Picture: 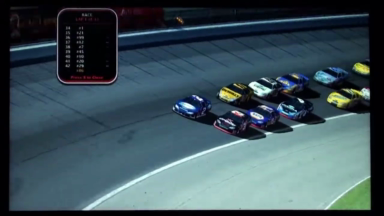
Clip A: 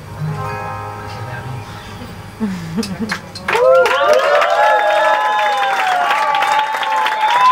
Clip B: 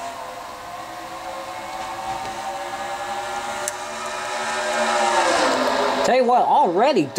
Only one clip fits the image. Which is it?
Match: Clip B